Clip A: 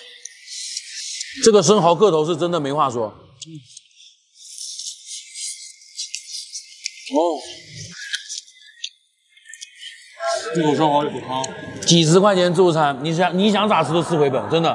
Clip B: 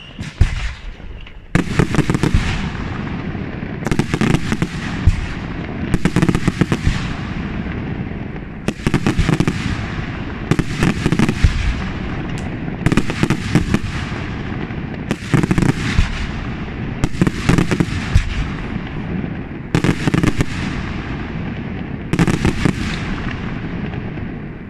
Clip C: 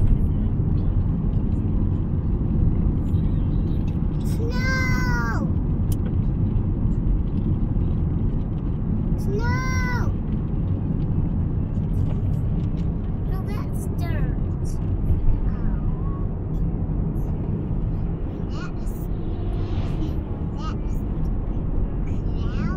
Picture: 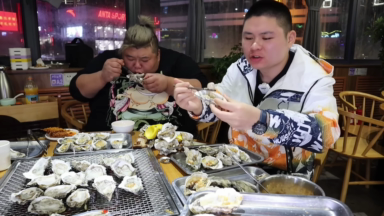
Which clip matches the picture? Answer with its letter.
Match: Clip A